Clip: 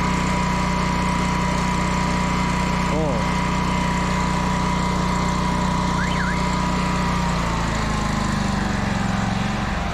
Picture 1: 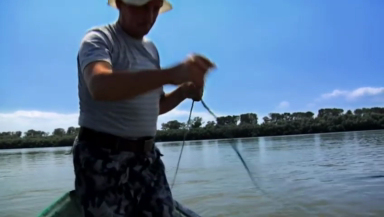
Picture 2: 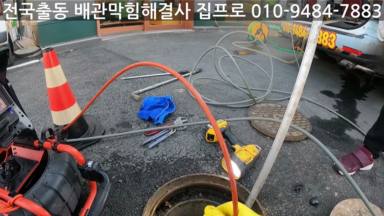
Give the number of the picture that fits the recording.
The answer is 2